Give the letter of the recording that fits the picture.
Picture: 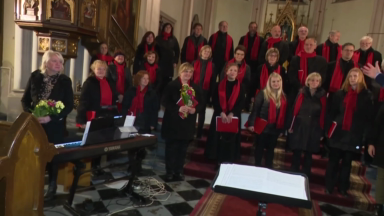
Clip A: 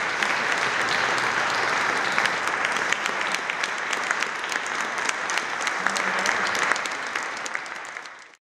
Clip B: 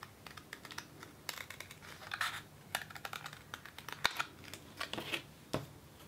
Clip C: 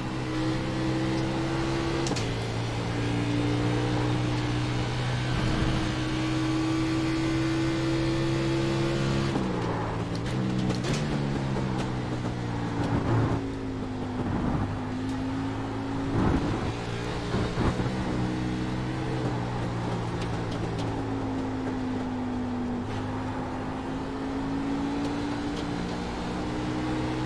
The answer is A